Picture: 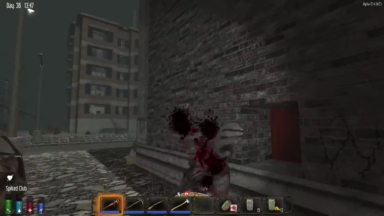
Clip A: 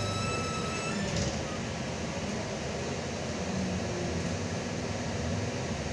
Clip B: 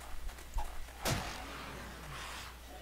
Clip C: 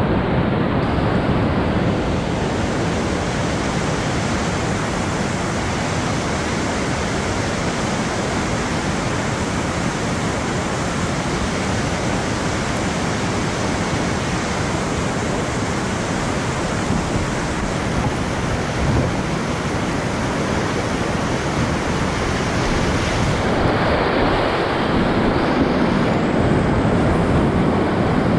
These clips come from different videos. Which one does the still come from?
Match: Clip B